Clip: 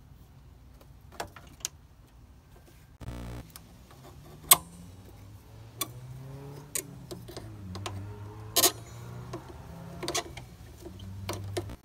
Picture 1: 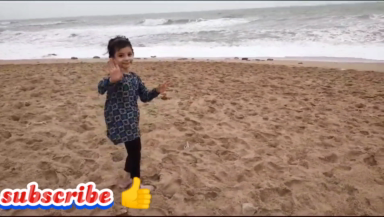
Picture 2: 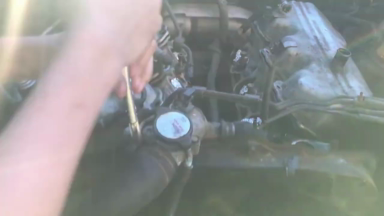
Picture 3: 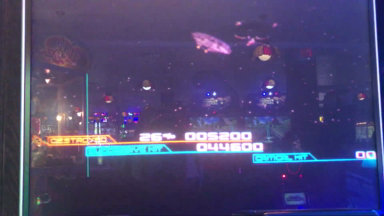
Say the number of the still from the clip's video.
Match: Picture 2